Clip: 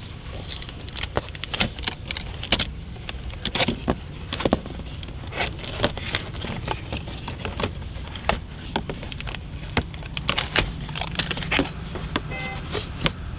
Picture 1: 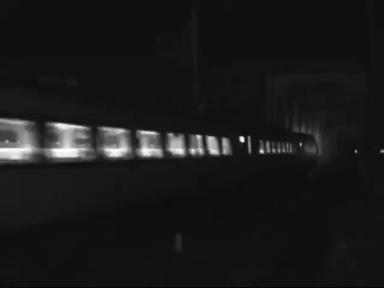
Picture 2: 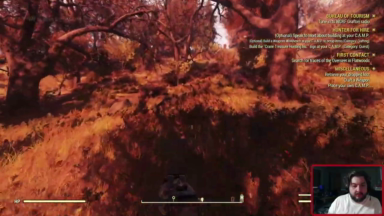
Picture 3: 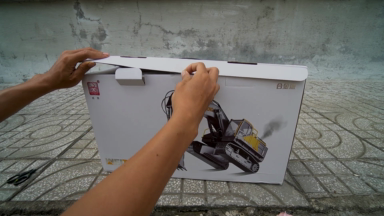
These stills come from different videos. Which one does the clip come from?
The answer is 3